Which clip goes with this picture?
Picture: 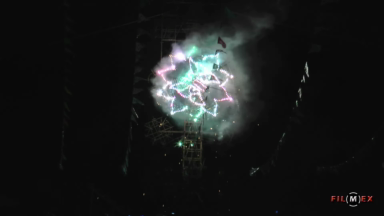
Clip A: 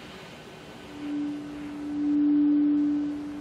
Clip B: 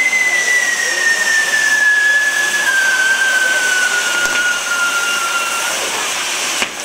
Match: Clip B